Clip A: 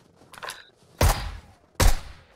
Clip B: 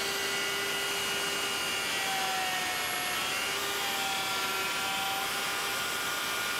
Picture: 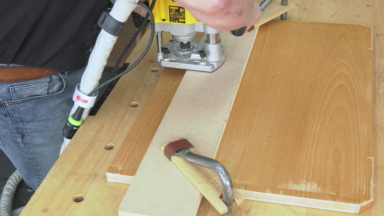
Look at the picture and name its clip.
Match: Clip B